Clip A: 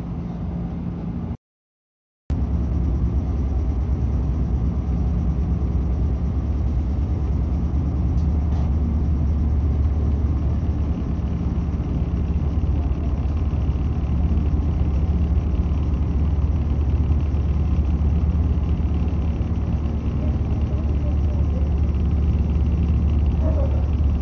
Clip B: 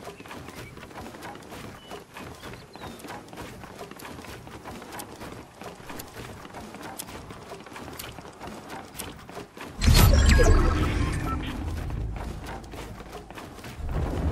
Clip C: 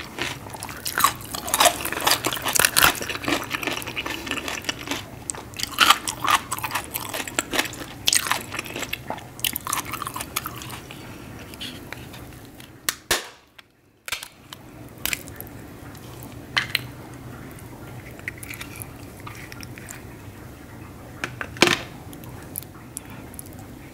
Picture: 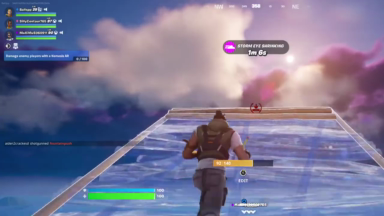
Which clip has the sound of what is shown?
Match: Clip B